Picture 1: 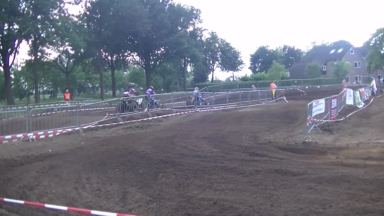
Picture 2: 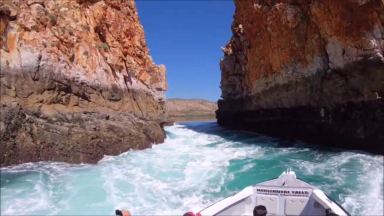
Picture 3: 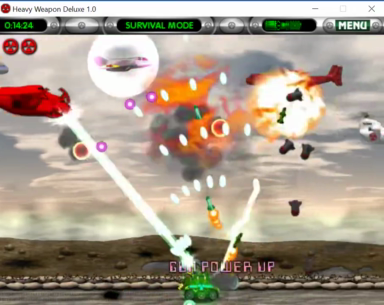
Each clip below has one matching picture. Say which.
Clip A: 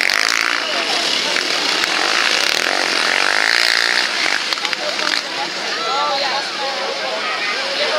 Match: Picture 1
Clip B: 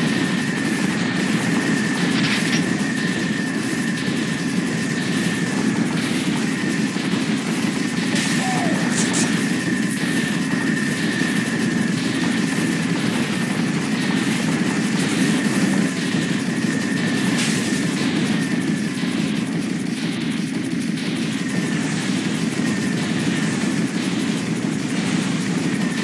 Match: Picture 3